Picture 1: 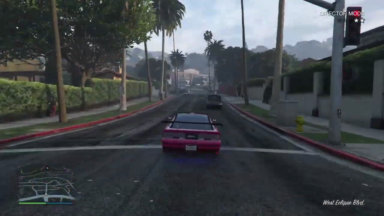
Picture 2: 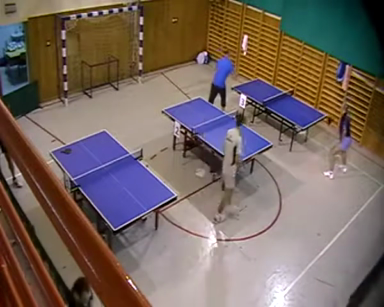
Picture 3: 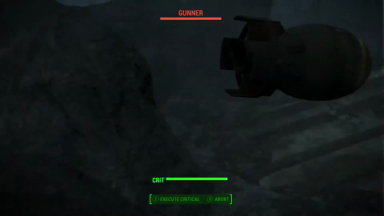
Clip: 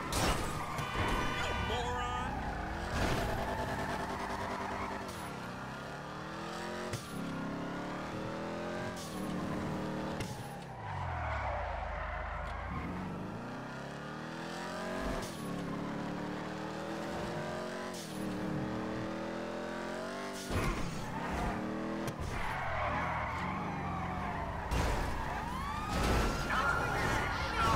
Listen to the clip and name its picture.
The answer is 1